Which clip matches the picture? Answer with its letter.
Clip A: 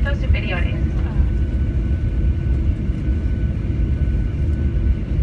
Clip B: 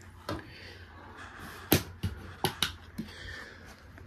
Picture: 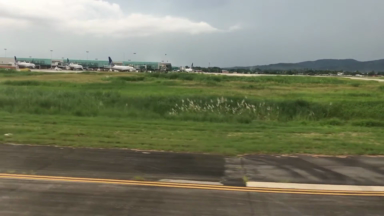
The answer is A